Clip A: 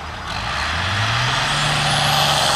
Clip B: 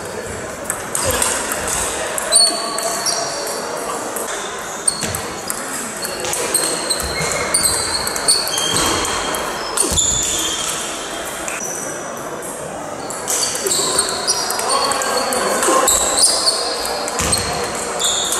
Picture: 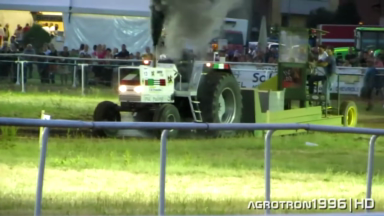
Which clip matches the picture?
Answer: A